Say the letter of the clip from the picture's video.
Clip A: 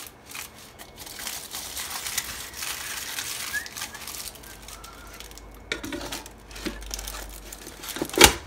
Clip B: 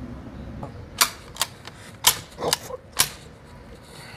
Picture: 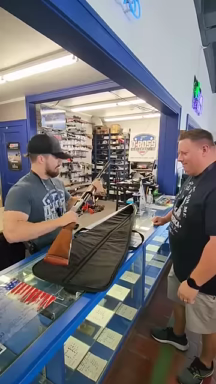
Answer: B